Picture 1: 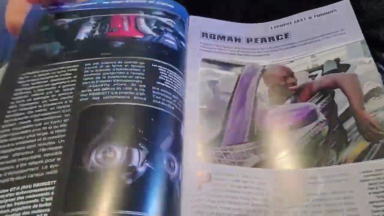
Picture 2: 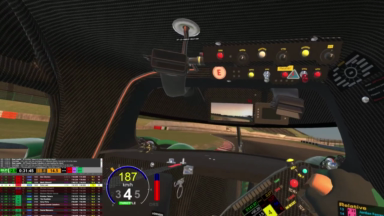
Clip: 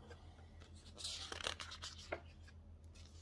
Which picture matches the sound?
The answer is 1